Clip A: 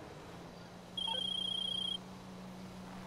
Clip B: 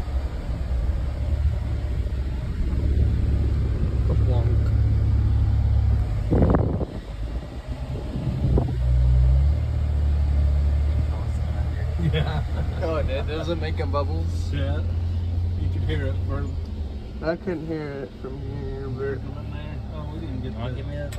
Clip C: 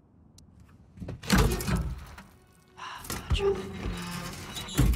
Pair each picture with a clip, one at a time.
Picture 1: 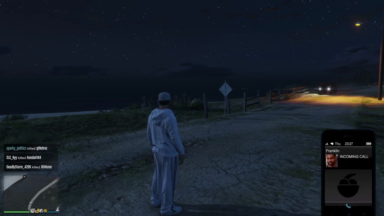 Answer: A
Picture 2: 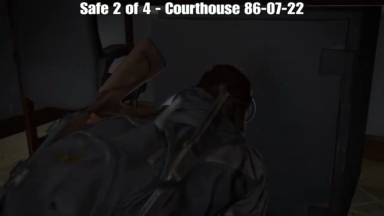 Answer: C